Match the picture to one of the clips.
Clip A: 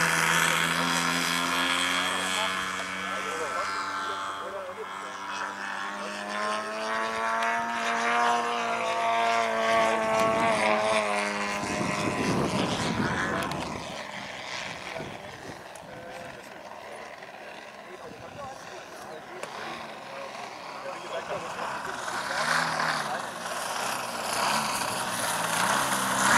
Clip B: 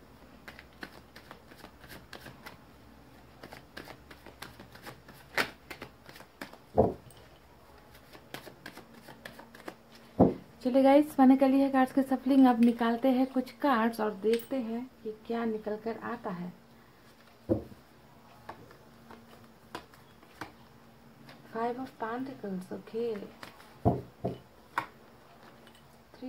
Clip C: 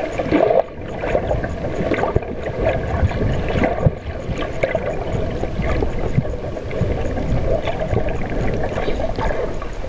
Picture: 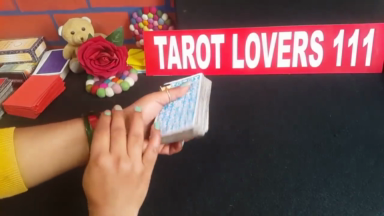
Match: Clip B